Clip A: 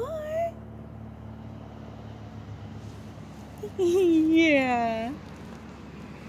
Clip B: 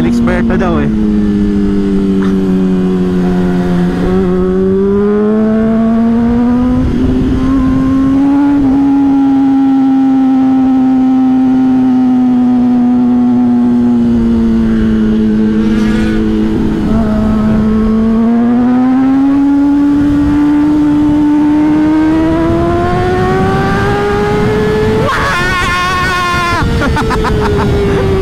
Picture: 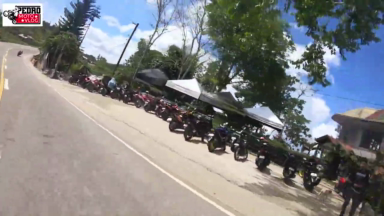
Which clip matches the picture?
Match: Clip B